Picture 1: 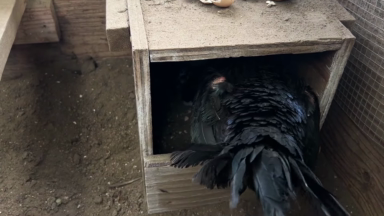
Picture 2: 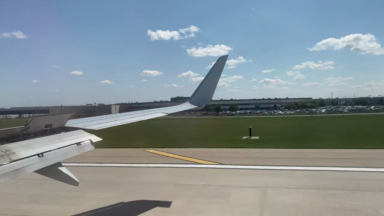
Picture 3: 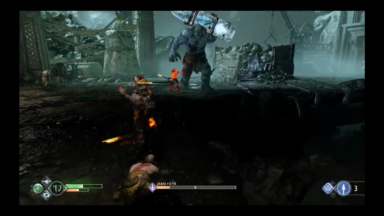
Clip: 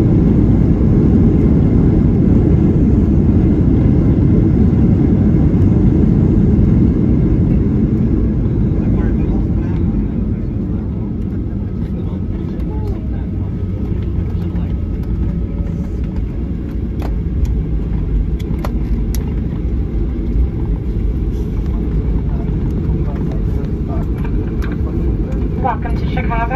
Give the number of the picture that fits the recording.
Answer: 2